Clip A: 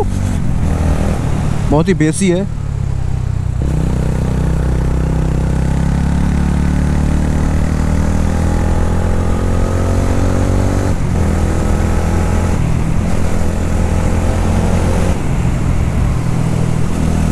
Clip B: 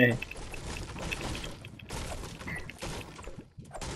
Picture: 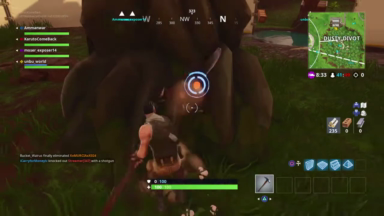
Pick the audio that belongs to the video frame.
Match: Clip B